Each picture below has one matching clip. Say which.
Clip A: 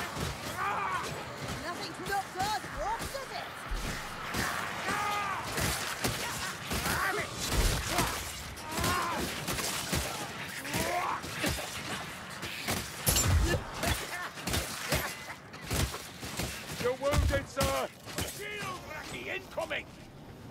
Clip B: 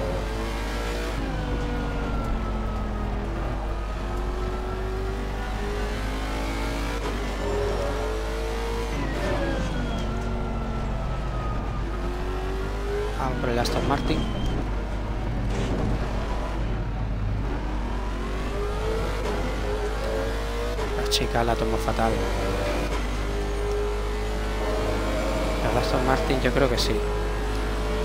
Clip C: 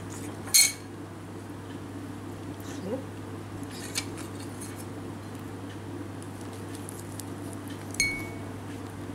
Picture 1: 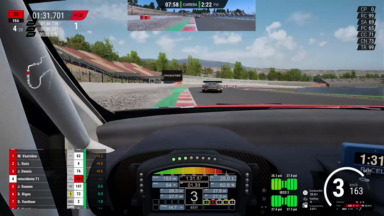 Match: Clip B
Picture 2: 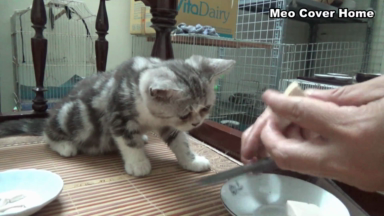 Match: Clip C